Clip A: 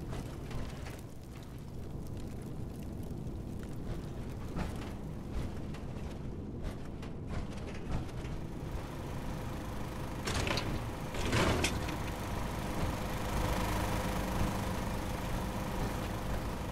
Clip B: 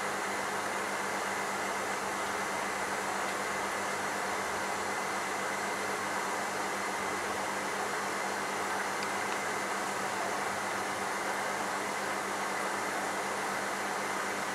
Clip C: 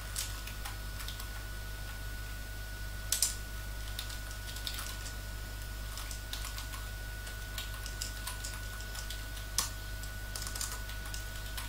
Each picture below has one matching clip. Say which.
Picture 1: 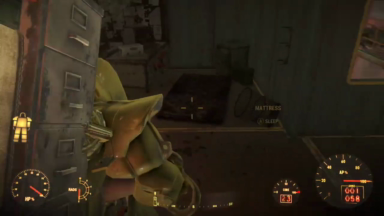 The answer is A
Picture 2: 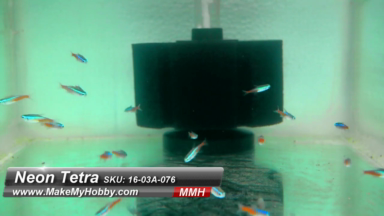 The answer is B